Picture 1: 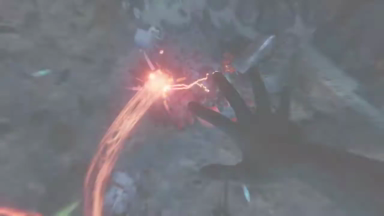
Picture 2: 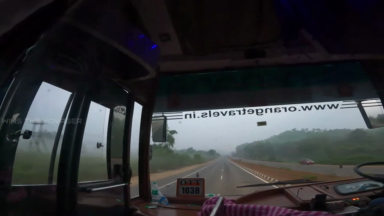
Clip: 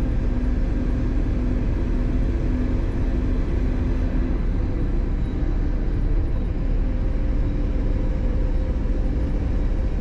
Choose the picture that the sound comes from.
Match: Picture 2